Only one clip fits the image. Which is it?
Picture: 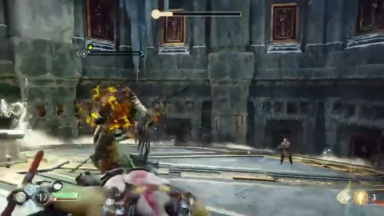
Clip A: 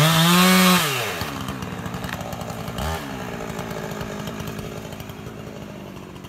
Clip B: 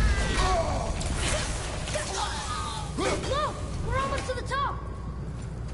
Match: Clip B